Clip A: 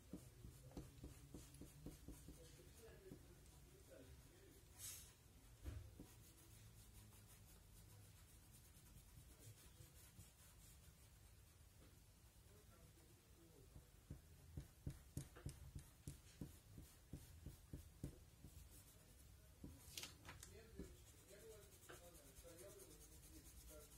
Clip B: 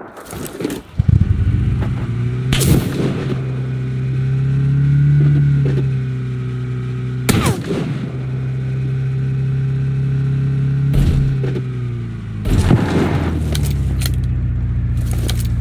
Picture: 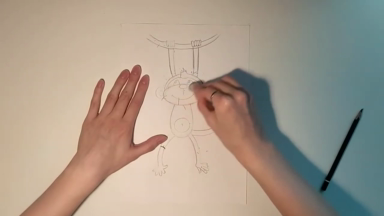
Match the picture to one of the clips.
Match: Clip A